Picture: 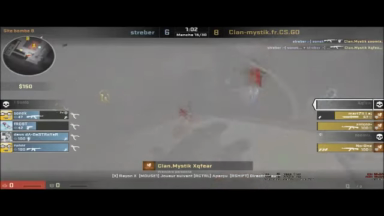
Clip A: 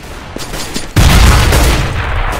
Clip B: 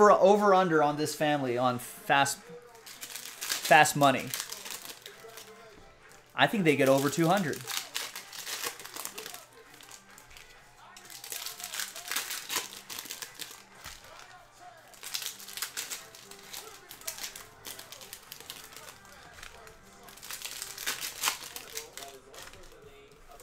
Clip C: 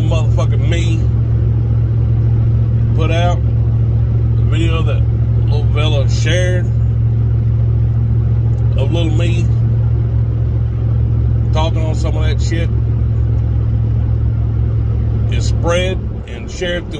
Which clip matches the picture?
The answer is A